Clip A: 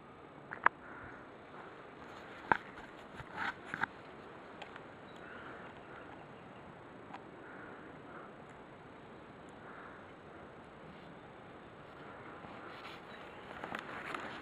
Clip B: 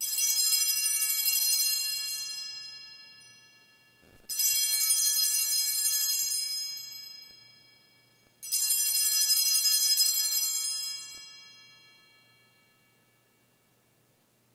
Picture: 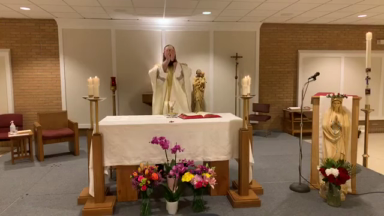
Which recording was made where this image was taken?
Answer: B